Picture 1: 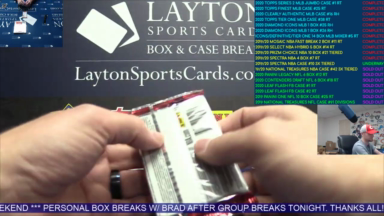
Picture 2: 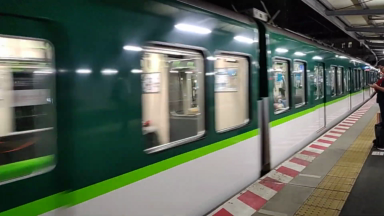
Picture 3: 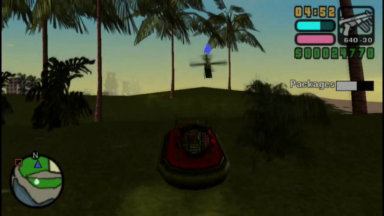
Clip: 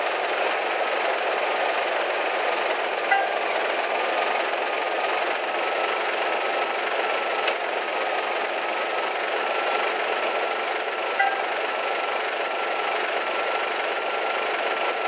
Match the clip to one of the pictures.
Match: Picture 3